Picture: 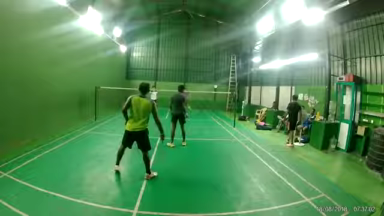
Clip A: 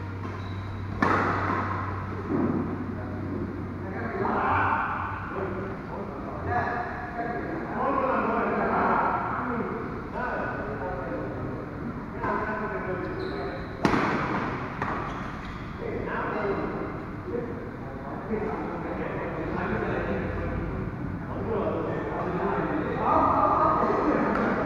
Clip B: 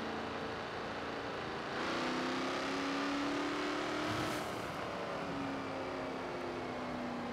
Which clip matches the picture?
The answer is A